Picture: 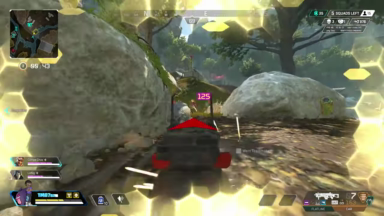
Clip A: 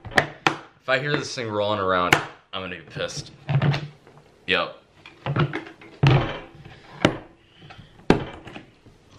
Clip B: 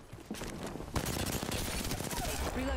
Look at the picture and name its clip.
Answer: B